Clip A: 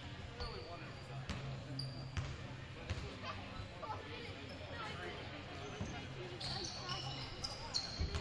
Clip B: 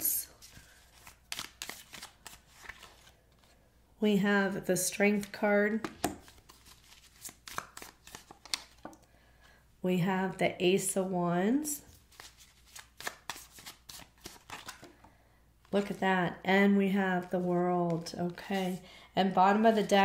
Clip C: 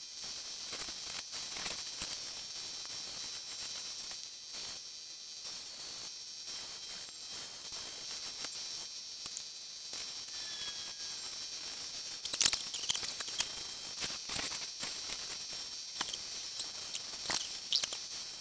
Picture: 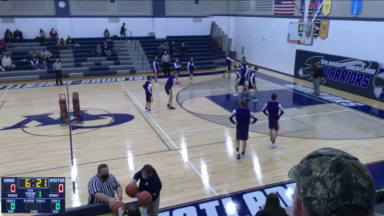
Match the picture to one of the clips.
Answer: A